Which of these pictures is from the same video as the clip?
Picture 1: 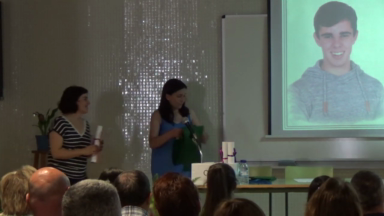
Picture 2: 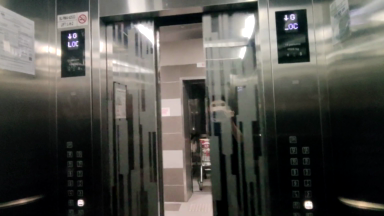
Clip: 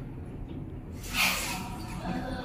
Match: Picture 2